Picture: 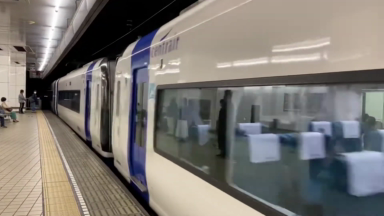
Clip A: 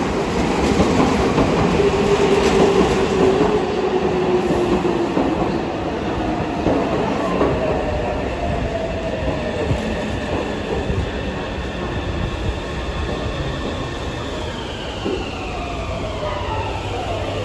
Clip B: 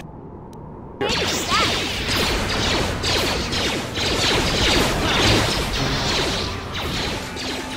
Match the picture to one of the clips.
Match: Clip A